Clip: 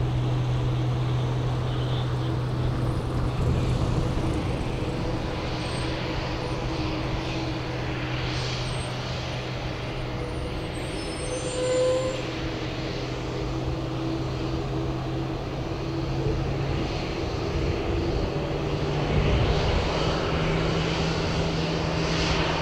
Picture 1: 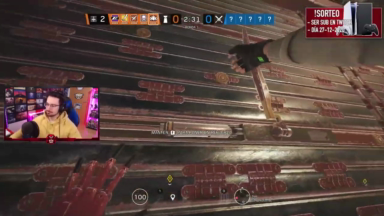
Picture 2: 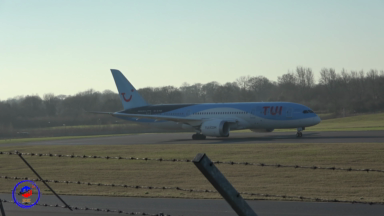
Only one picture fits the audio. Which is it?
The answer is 2